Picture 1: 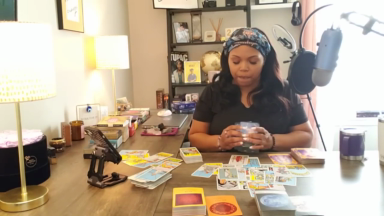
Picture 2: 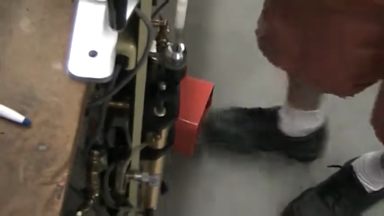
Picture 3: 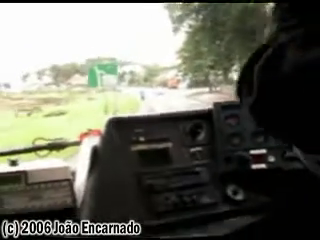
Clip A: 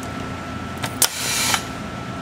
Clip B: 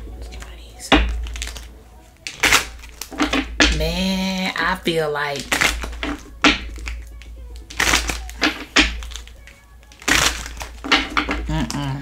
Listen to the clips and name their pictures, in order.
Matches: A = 2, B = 1